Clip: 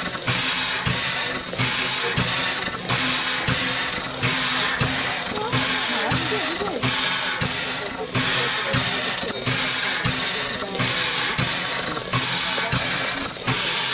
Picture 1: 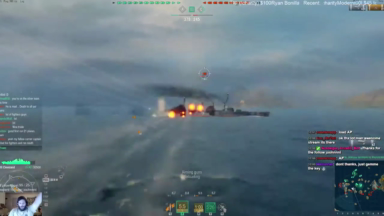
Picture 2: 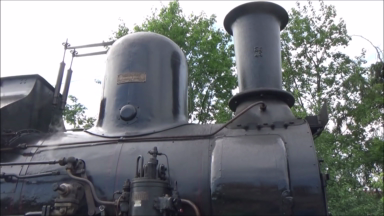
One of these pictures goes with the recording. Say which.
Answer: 2